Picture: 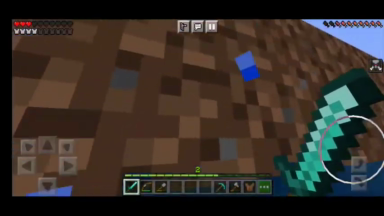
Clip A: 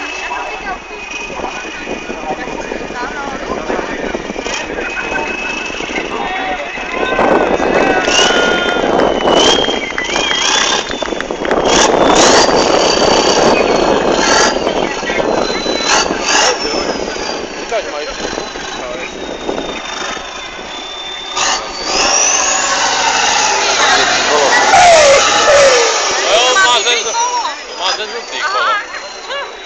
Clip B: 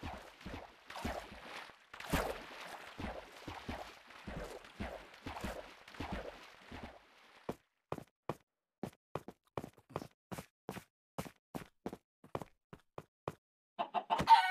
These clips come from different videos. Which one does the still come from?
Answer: B